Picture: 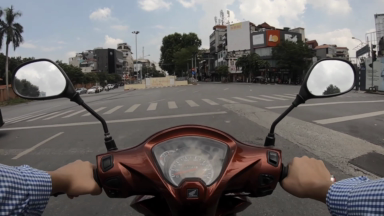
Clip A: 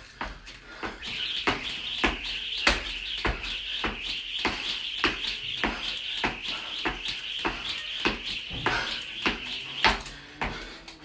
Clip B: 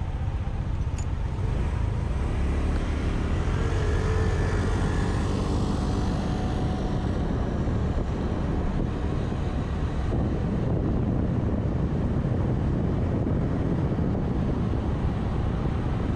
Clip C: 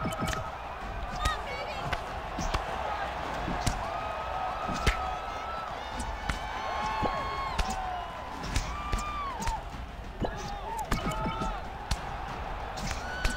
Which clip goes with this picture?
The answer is B